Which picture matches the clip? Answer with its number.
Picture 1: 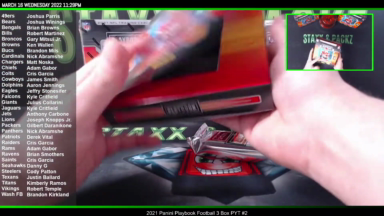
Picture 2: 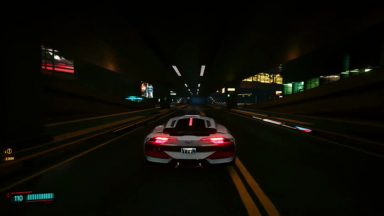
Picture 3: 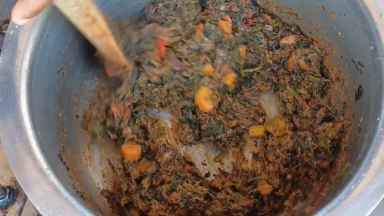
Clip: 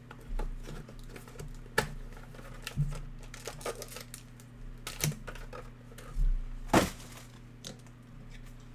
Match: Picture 1